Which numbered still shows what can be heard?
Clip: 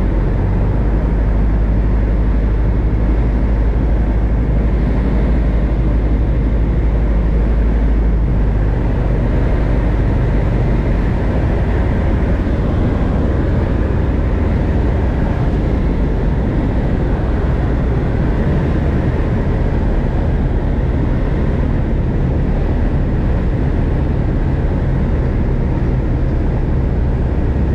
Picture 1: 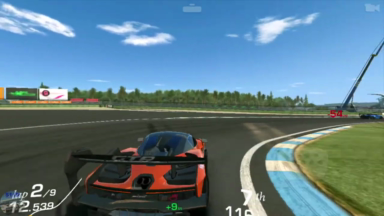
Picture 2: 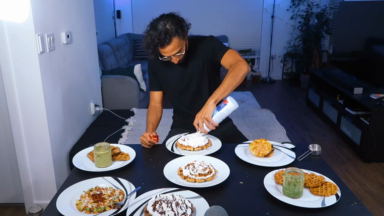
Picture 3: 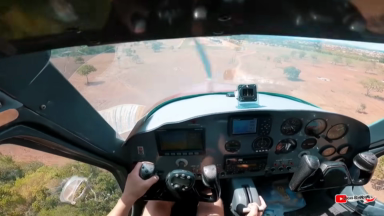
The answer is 3